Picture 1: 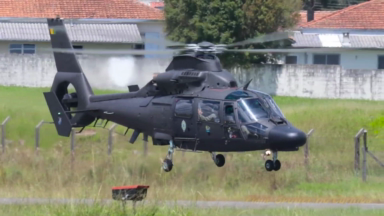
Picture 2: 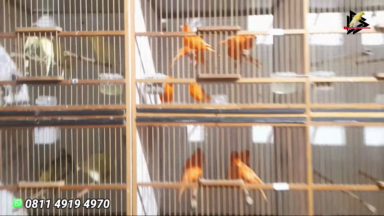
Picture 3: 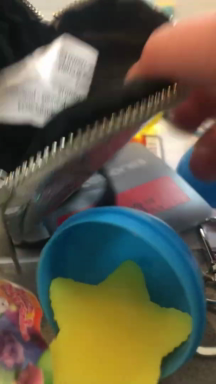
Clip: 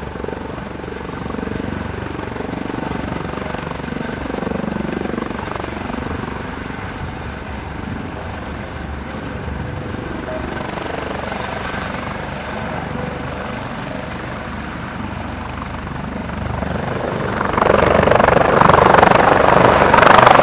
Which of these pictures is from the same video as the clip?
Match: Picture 1